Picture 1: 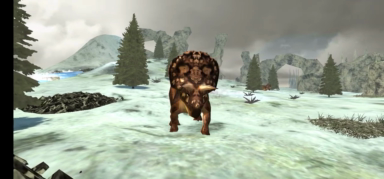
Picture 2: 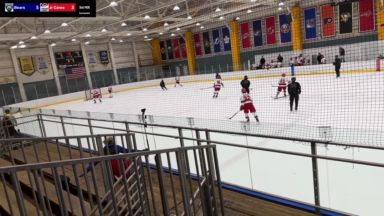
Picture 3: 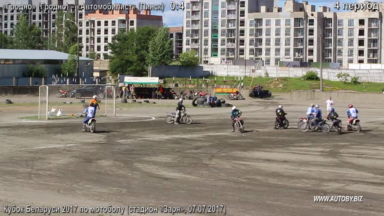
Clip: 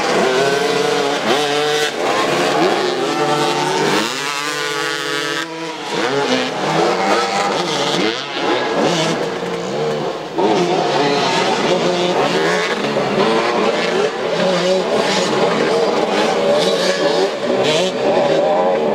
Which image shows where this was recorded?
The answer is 3